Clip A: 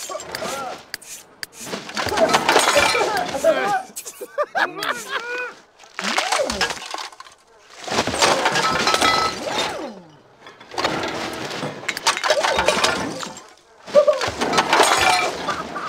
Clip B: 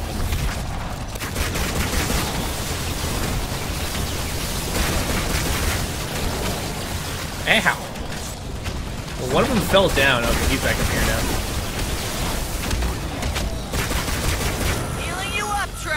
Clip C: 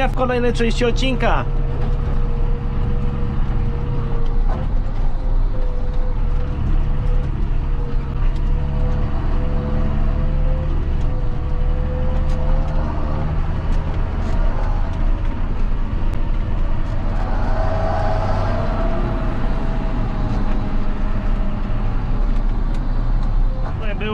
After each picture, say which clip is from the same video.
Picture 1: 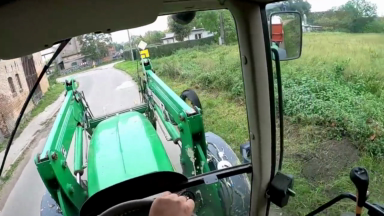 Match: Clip C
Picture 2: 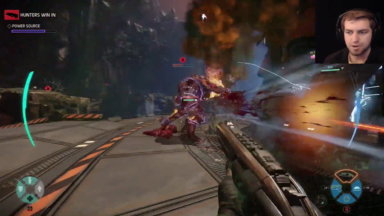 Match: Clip B